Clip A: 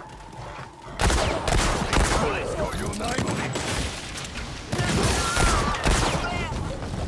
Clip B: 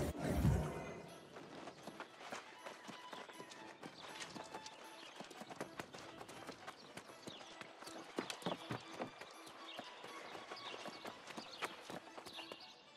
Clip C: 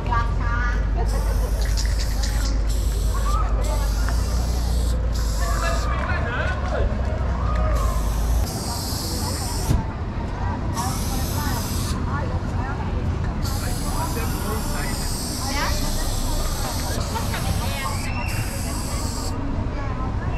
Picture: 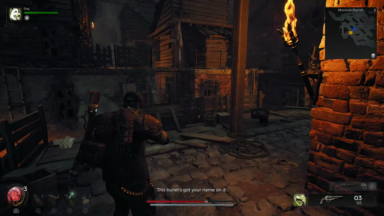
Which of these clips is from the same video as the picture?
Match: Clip A